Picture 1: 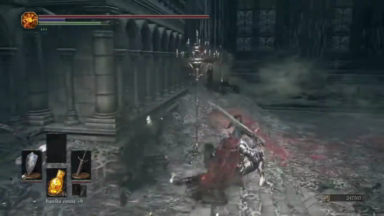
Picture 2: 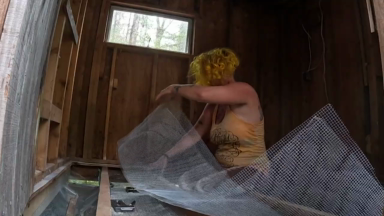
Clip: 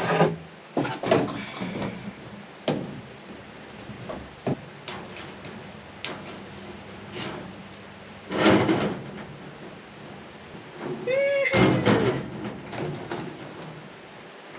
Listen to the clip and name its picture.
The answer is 2